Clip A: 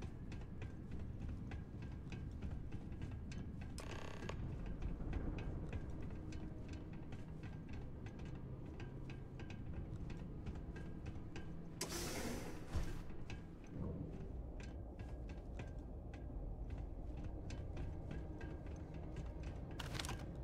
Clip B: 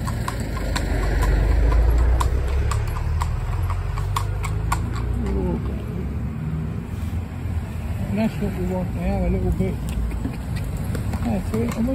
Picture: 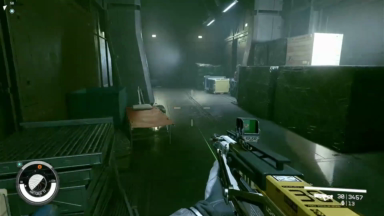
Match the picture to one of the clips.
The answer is A